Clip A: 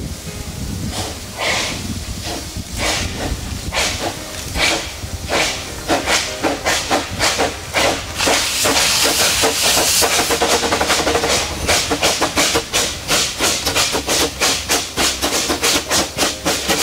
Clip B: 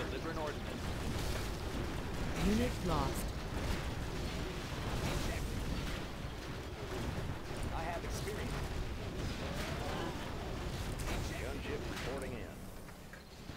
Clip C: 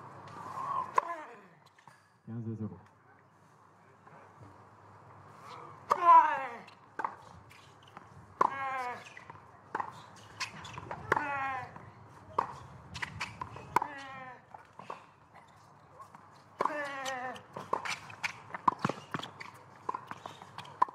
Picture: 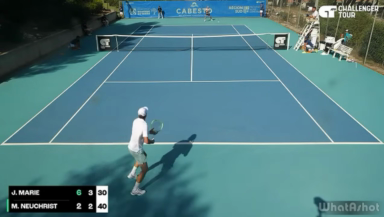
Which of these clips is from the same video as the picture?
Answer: C